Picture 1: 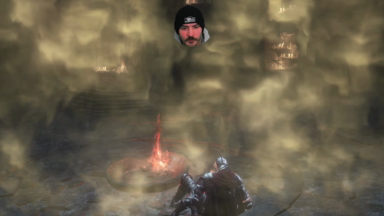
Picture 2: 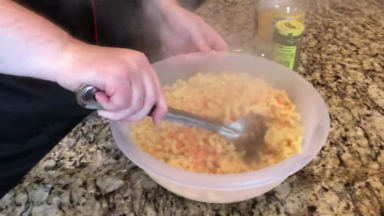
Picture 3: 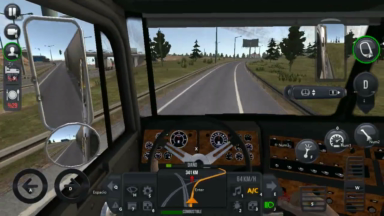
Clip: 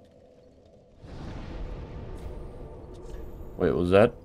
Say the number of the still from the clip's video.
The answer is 1